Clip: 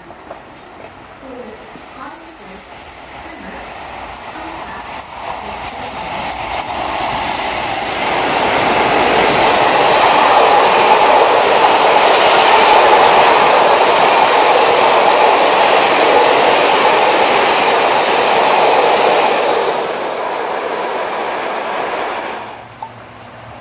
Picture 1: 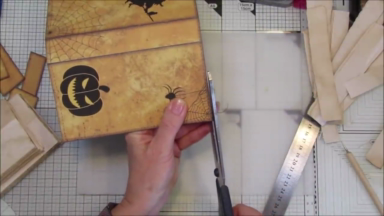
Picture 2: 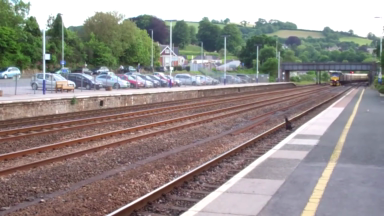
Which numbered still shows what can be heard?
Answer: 2